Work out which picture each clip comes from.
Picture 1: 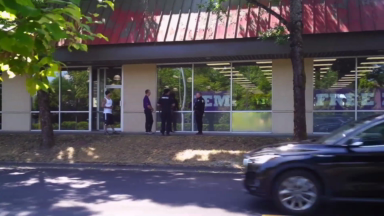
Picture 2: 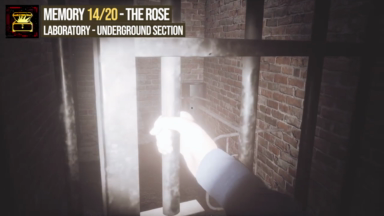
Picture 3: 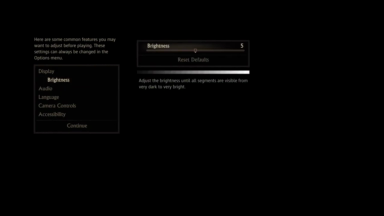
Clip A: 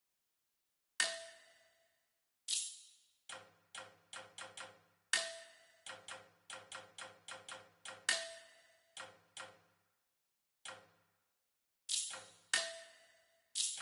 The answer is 3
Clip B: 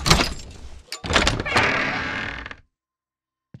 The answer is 2